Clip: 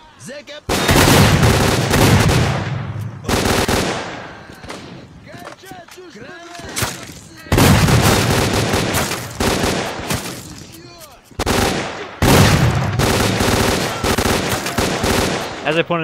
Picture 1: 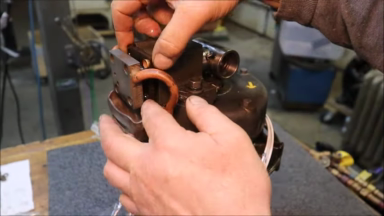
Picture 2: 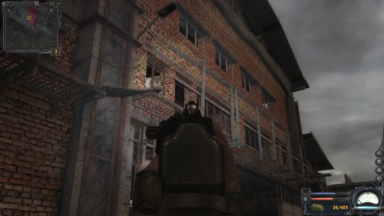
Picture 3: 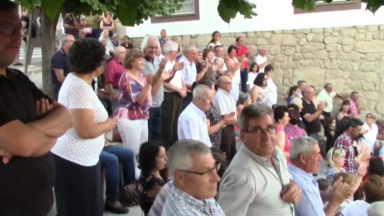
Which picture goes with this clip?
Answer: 2